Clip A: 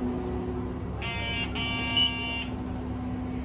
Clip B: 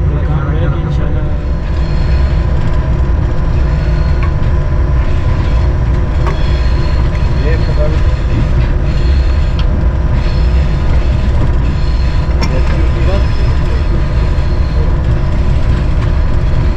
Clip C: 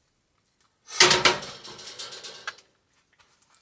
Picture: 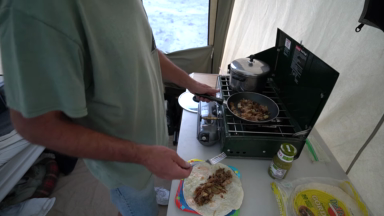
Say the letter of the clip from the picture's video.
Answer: C